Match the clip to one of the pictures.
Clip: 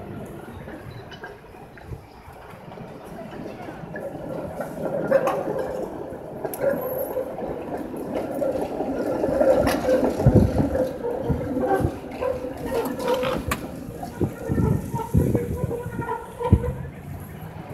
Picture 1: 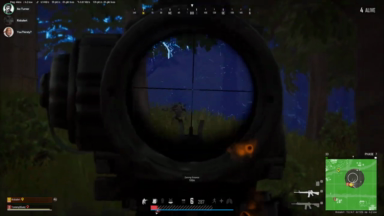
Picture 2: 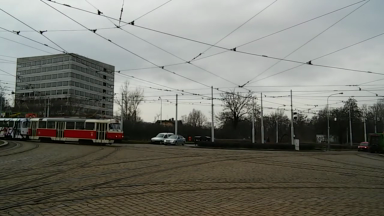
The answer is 2